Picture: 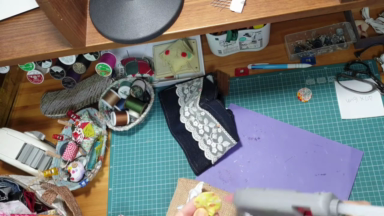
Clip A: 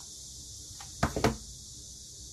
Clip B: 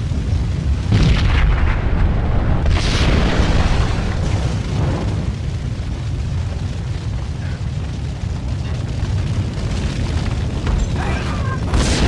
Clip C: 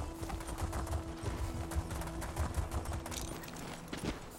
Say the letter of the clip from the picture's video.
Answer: A